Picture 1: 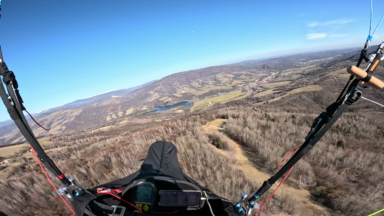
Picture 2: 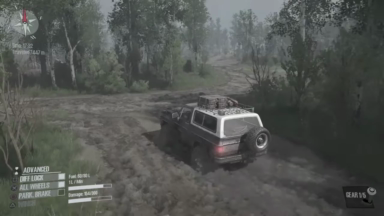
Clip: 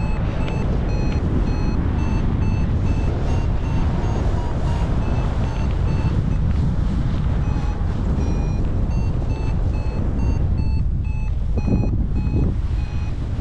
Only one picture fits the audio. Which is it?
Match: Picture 1